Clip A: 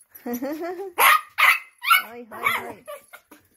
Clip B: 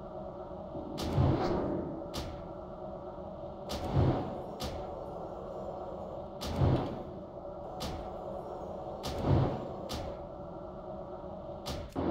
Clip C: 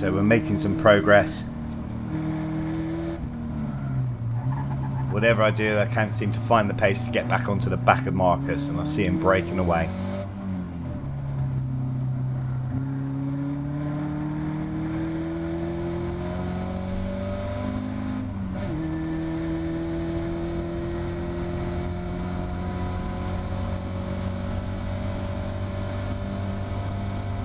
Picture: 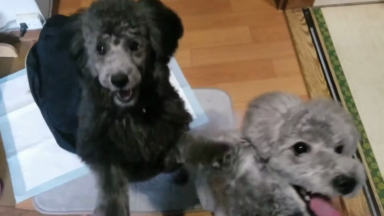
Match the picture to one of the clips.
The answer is A